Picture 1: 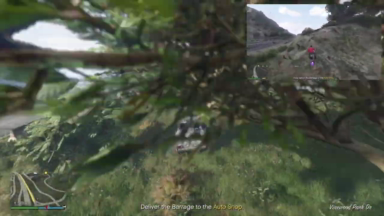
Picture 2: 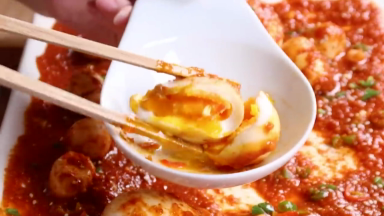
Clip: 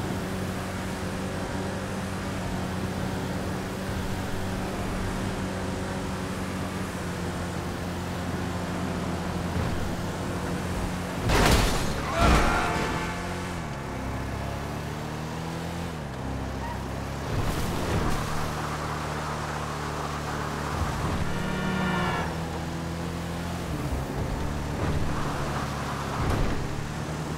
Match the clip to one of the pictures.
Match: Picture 1